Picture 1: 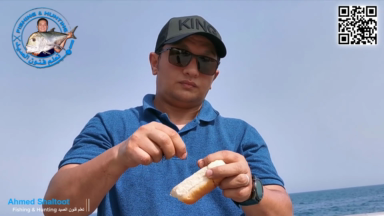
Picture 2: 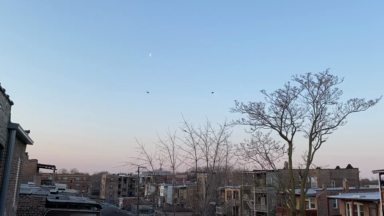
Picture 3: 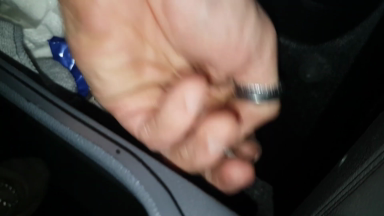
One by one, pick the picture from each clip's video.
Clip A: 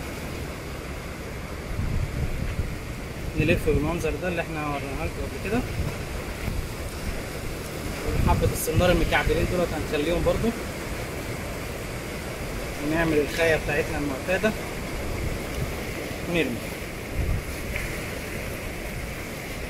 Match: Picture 1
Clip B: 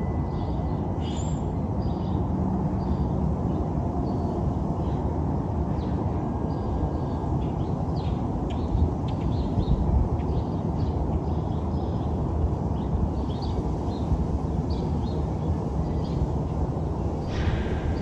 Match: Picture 2